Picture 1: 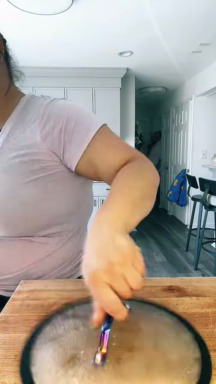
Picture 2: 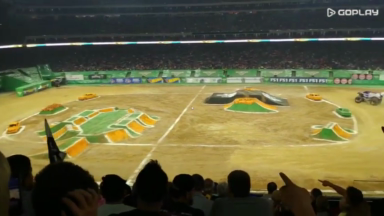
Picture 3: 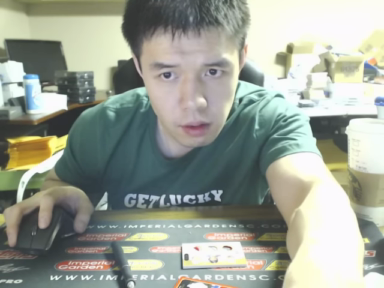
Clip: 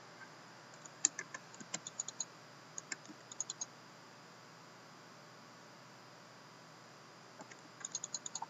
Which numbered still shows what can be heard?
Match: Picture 3